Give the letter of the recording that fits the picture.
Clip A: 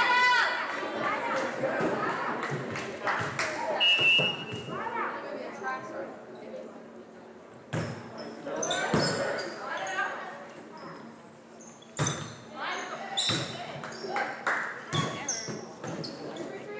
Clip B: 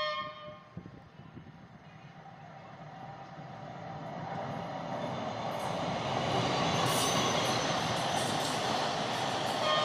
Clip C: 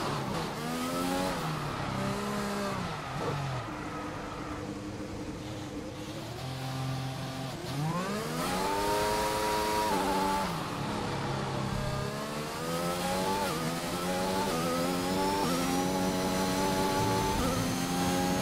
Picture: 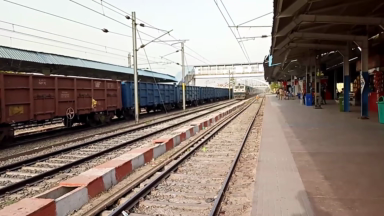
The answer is B